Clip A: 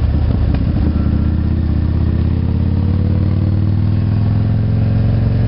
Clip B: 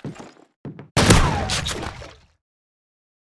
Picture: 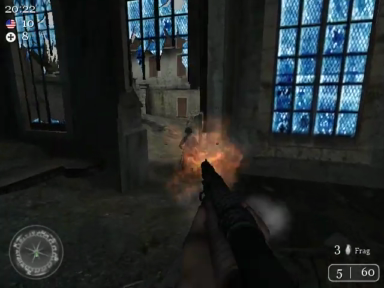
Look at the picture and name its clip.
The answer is B